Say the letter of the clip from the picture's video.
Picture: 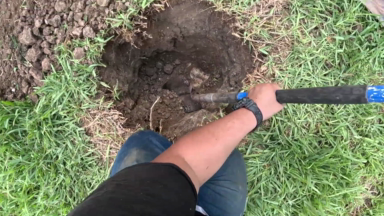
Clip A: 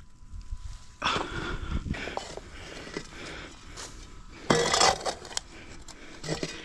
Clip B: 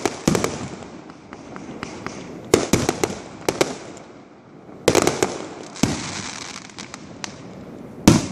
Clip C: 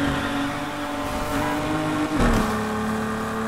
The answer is A